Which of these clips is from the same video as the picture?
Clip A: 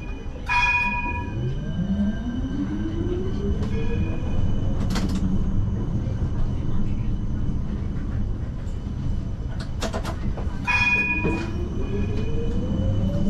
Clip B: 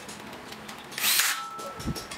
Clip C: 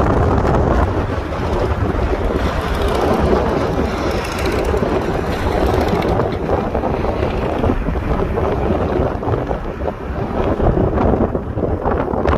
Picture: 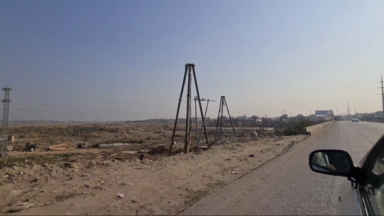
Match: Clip C